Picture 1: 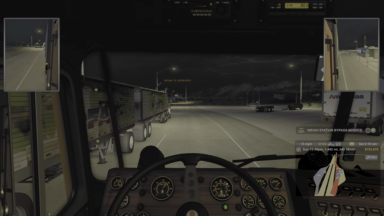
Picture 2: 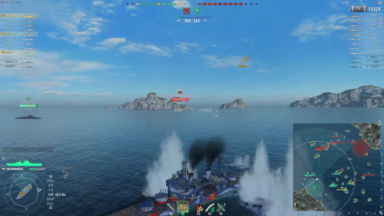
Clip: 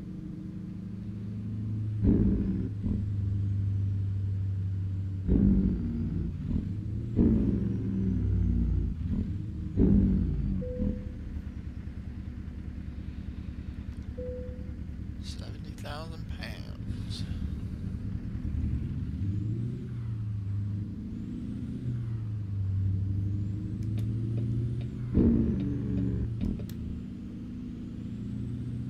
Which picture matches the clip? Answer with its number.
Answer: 1